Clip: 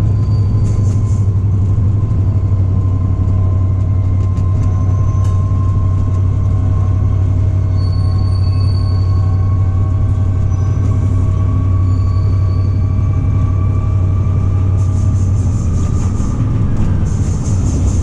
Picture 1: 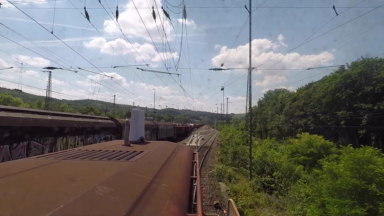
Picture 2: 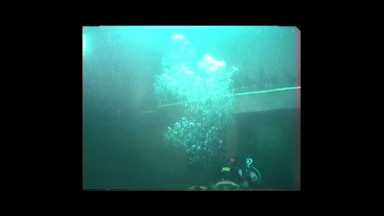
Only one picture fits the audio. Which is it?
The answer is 1